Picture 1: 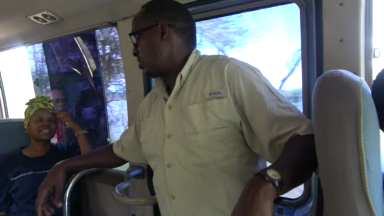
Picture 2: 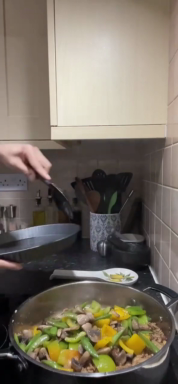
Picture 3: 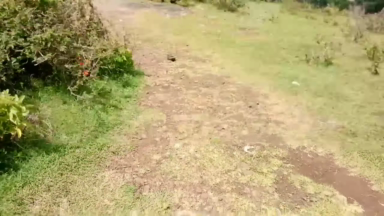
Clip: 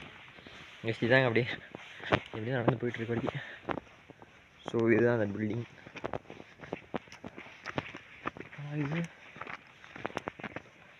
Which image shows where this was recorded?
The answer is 3